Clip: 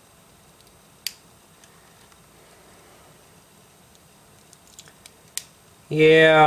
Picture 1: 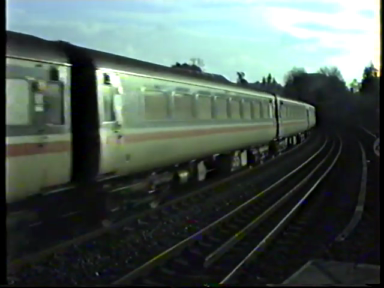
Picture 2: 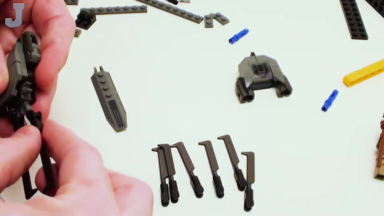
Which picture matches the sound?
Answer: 2